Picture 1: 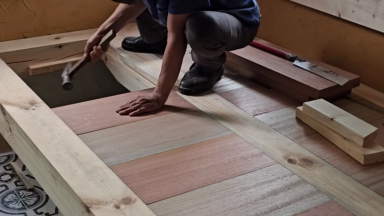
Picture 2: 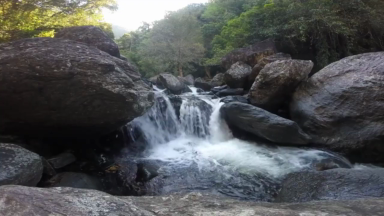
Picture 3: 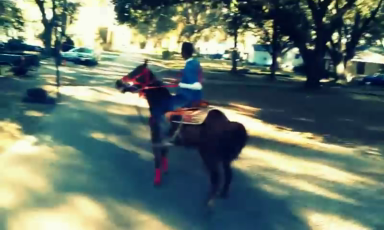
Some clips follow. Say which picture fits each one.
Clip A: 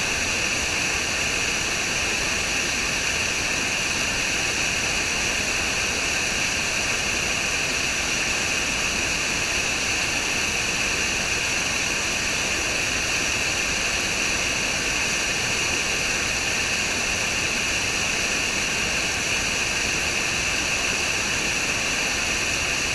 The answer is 2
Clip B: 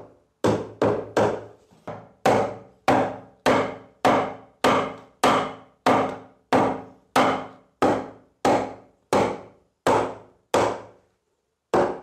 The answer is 1